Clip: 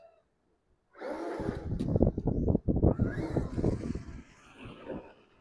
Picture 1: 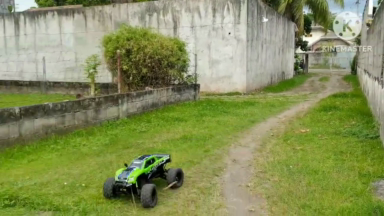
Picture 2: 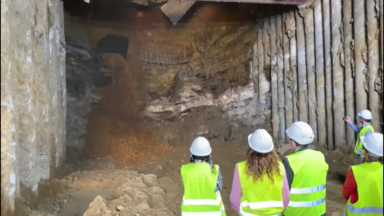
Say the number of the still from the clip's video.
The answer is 1